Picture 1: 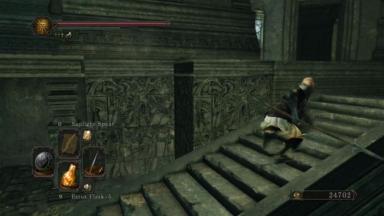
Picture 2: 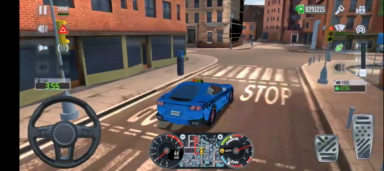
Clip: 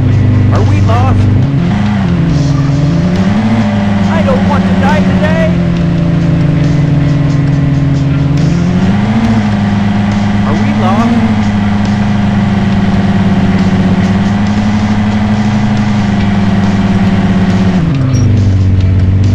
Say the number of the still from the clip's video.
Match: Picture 2